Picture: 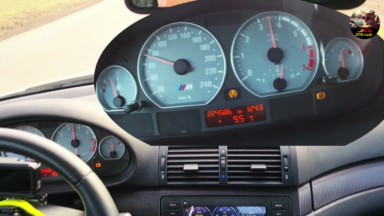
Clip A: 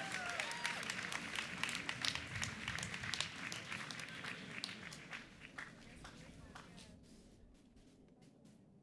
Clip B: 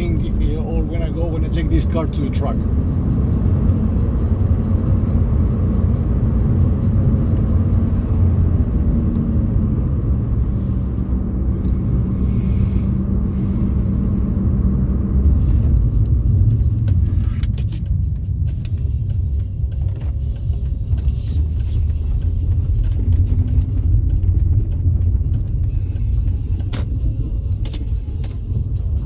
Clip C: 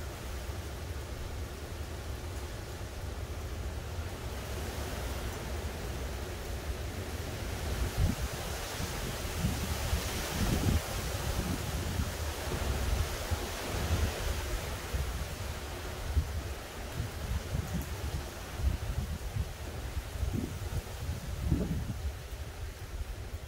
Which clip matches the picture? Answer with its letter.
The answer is B